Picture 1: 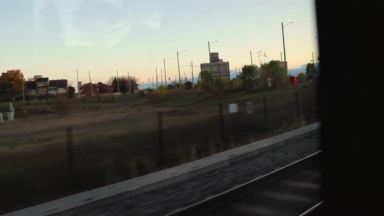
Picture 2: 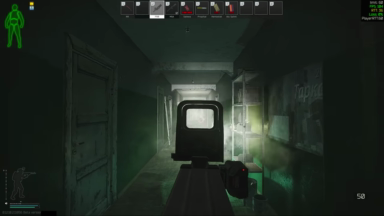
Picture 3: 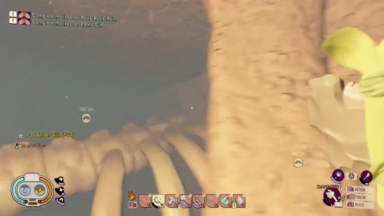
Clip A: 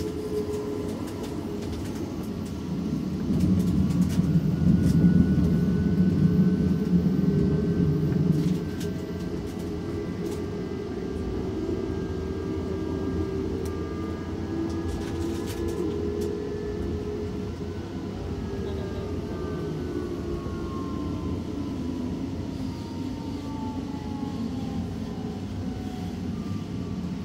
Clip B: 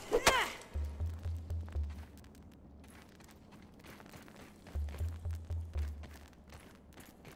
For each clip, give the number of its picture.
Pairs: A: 1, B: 3